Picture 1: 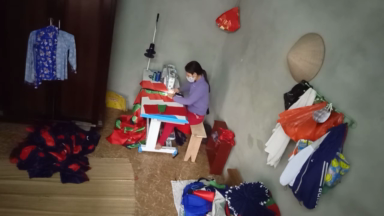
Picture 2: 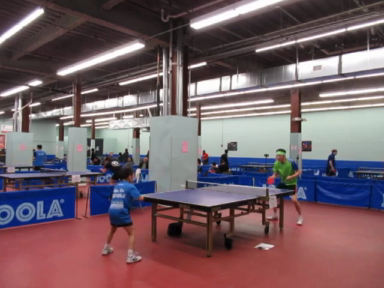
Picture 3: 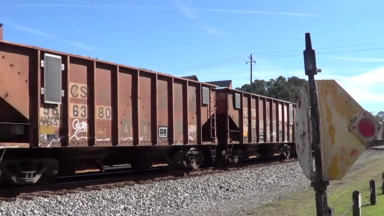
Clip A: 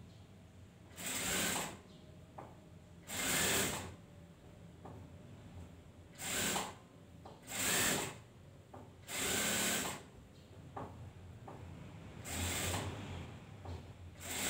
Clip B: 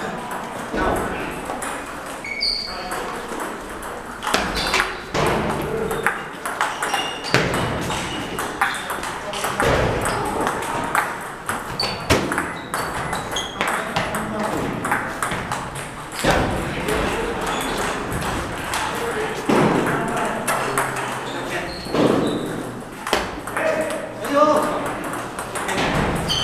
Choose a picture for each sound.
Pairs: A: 1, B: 2